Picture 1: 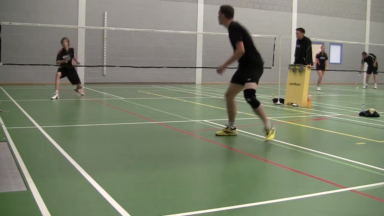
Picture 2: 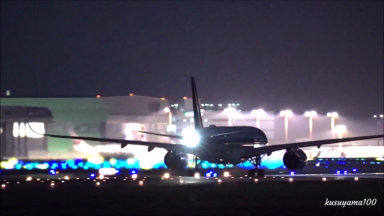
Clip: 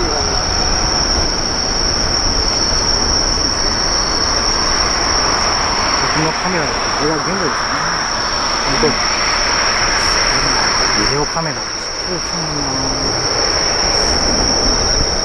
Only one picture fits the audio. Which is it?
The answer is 2